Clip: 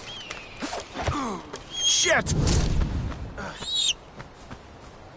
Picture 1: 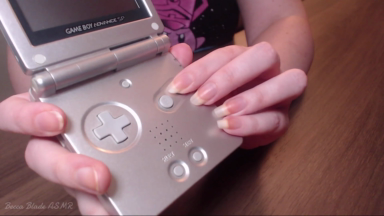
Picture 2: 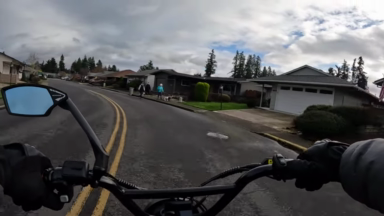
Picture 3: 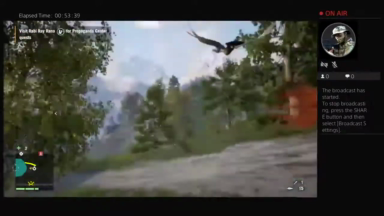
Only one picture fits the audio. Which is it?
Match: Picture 3